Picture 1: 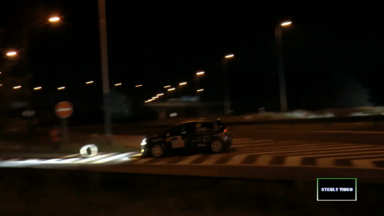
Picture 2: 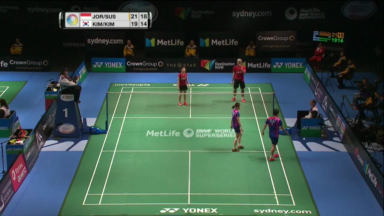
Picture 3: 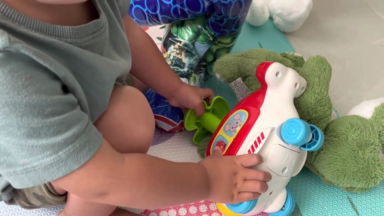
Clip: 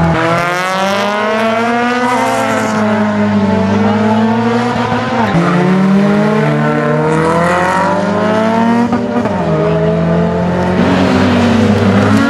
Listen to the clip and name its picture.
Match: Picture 1